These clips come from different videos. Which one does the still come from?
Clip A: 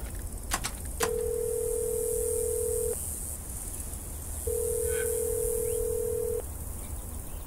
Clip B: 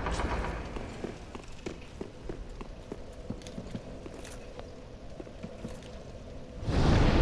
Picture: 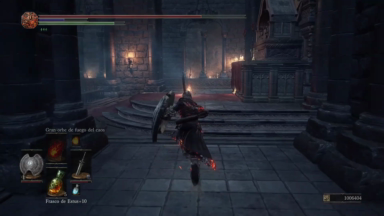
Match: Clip B